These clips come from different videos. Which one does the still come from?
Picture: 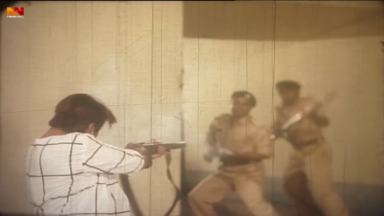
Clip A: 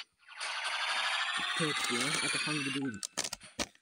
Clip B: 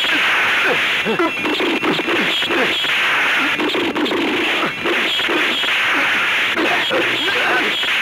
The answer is B